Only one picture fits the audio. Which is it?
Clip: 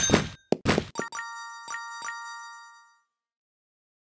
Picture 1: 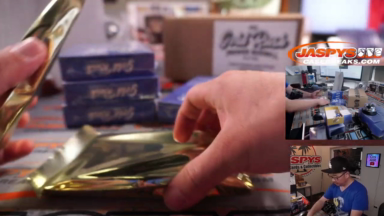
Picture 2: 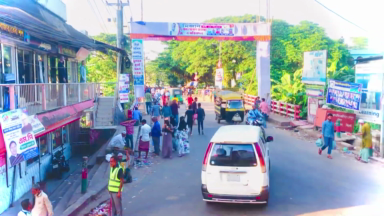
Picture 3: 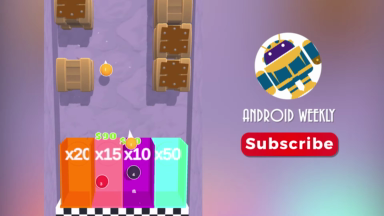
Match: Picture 3